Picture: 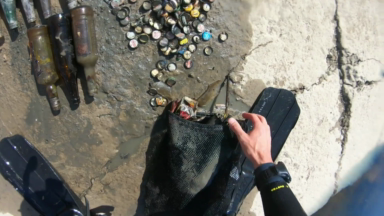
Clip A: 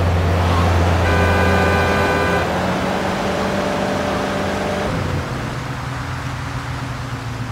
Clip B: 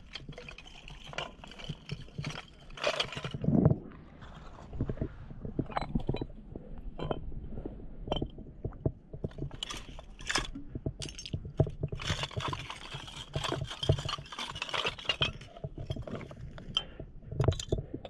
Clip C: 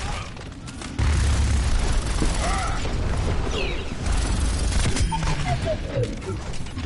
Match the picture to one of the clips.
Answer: B